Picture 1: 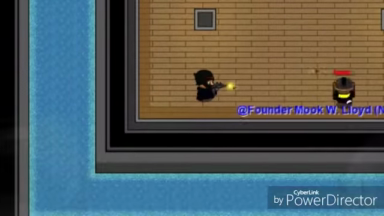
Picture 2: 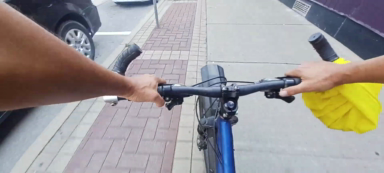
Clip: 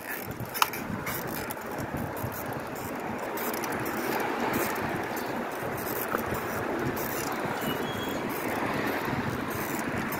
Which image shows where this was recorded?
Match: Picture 2